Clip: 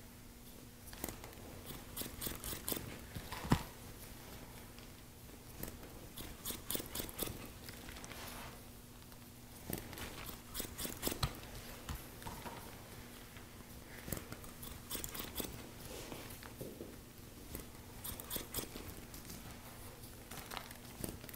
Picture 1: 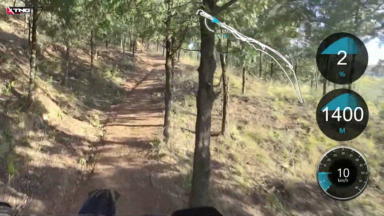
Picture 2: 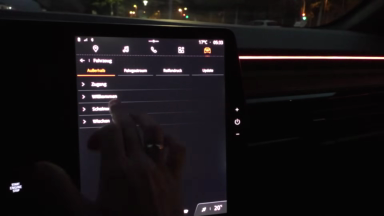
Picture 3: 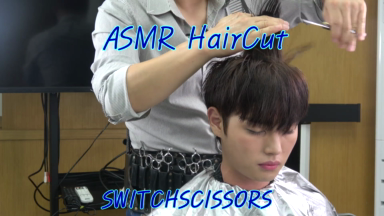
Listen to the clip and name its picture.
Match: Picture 3